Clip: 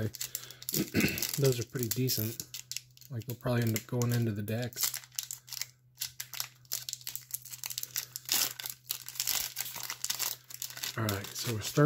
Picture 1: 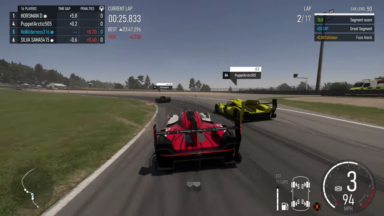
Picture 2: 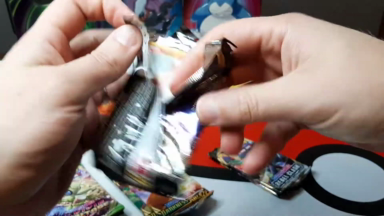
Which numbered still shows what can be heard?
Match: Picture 2